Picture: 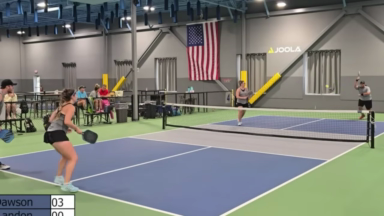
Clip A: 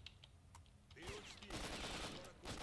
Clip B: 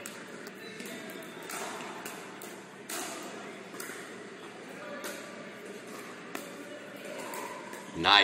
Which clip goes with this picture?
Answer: B